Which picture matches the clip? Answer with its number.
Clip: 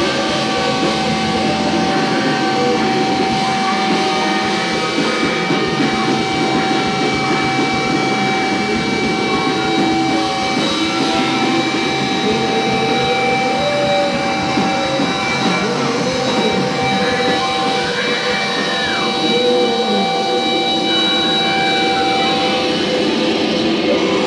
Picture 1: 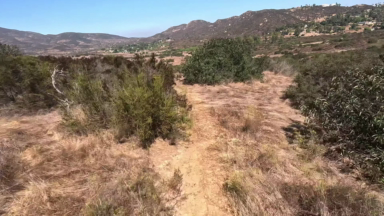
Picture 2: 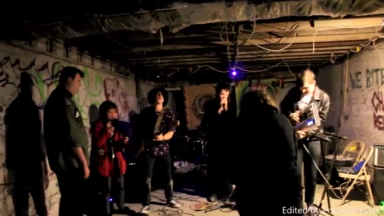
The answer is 2